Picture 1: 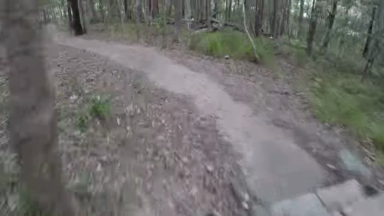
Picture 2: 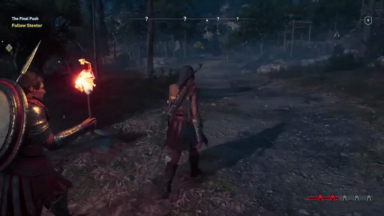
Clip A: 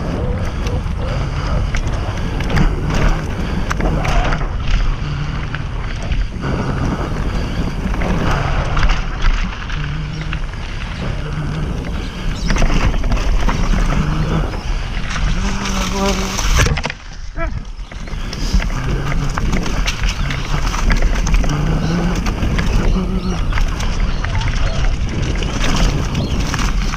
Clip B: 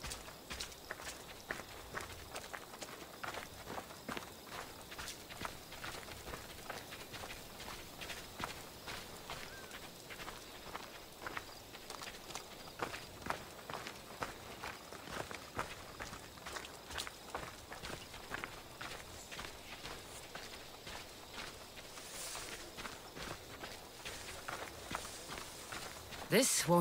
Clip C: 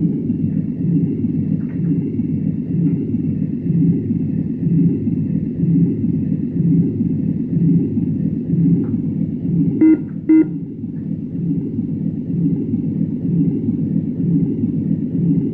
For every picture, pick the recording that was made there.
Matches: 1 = A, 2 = B